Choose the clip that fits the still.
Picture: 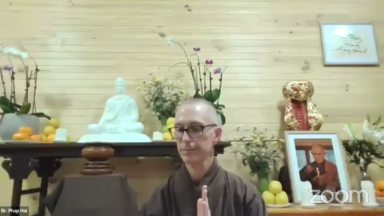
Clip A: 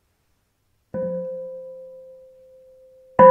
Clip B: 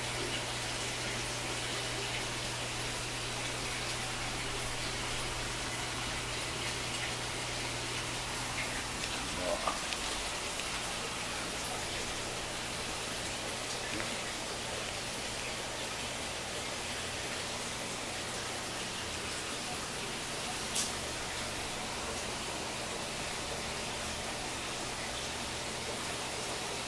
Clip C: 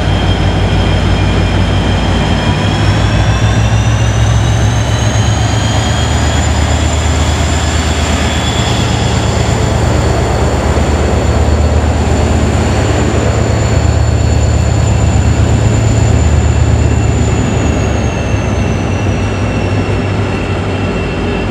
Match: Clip A